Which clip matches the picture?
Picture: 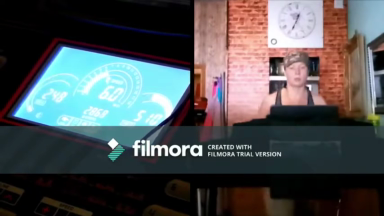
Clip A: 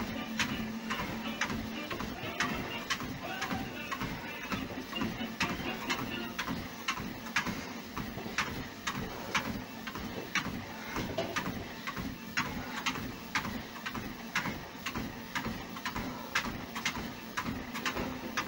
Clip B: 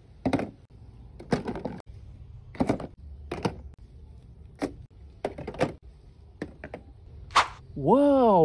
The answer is A